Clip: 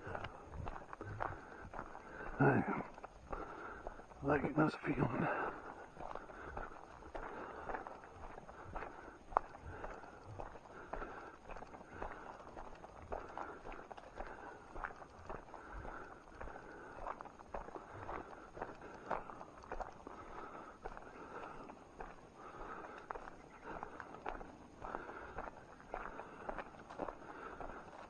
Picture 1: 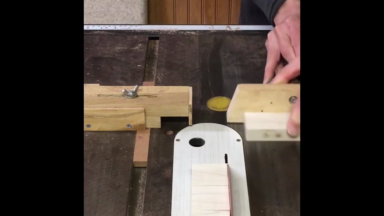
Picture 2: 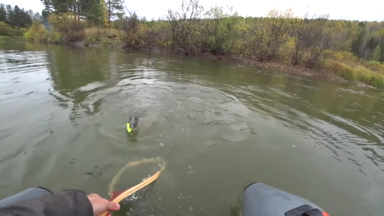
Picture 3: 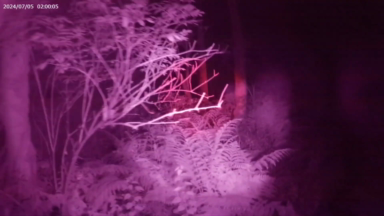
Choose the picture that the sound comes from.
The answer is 3